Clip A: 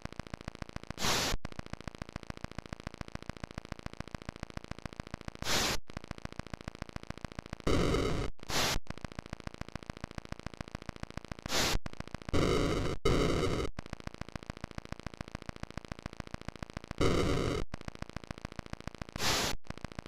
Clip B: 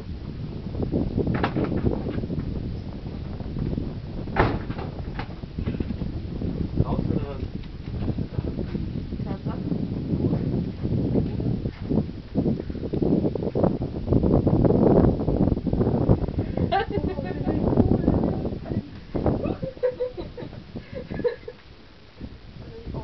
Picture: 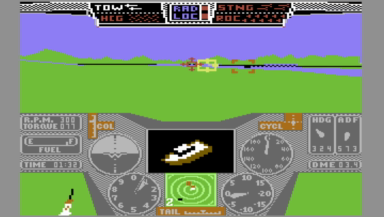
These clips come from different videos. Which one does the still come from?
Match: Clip A